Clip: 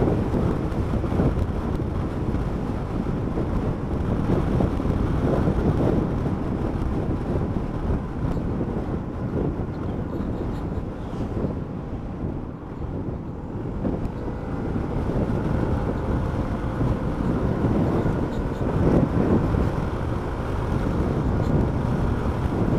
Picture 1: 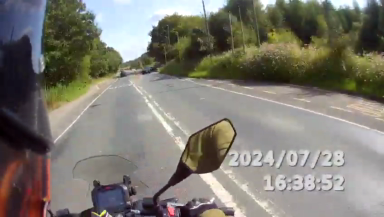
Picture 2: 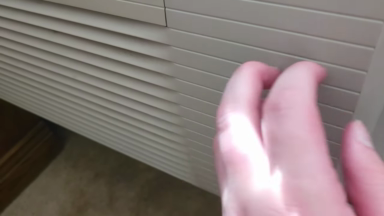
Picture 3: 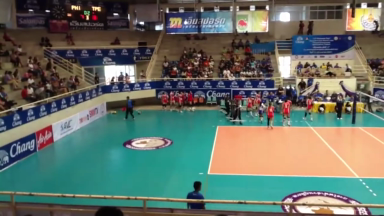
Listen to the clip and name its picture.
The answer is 1